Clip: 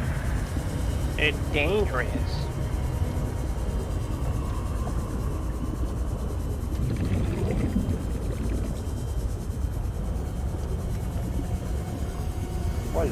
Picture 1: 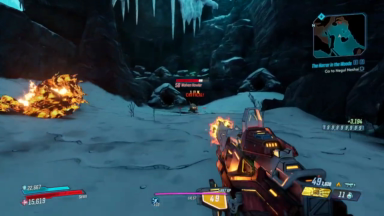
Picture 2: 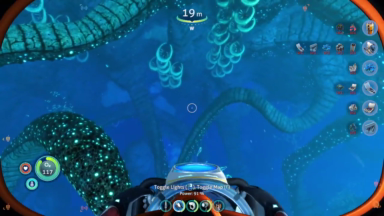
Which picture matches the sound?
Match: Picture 2